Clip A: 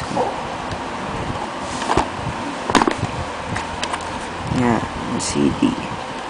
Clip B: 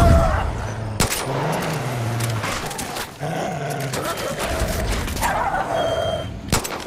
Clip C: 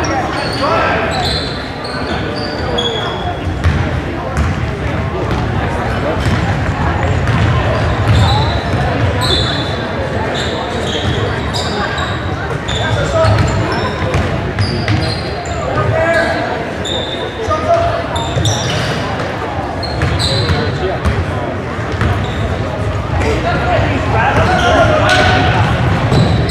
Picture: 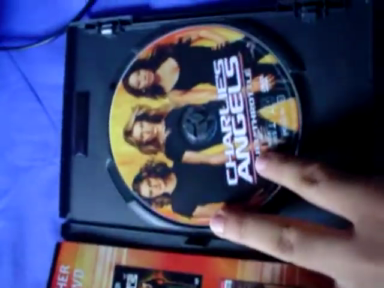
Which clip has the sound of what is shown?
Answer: A